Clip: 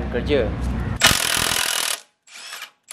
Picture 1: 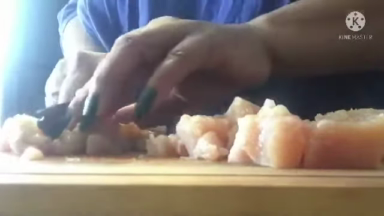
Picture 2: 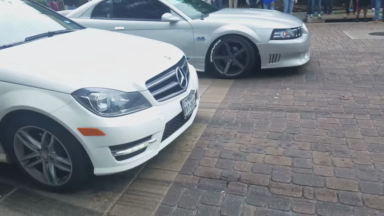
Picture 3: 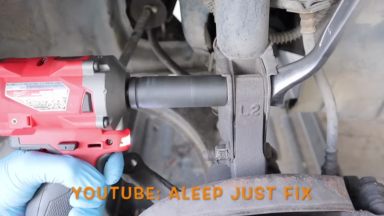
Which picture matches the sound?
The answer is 3